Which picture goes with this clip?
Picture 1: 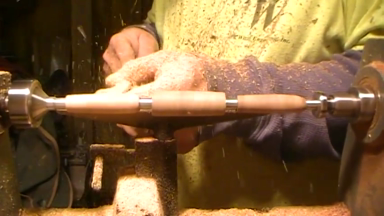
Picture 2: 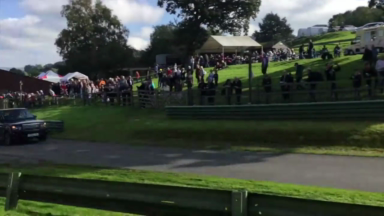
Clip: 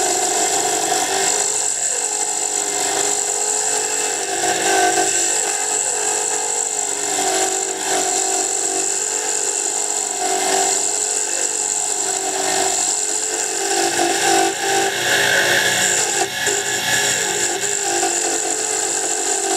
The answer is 1